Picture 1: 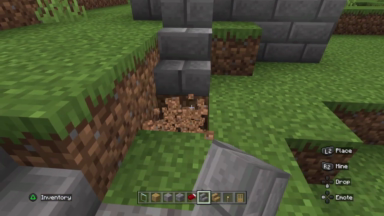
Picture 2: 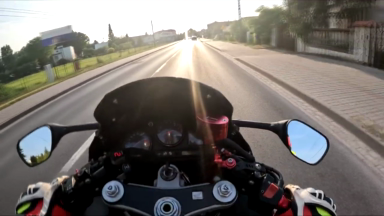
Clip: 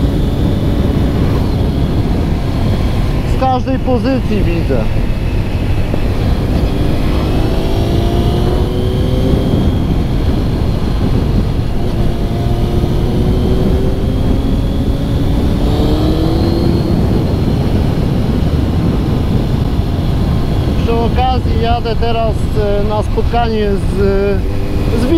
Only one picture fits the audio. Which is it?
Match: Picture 2